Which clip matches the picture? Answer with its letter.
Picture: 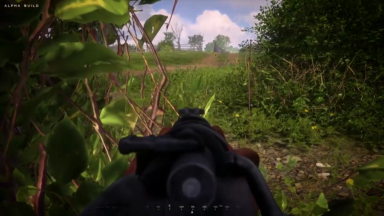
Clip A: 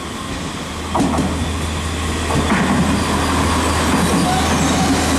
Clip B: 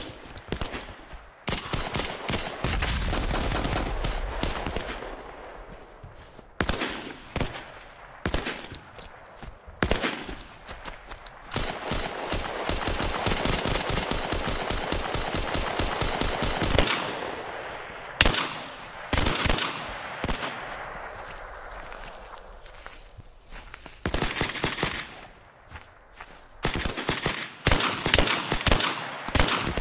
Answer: B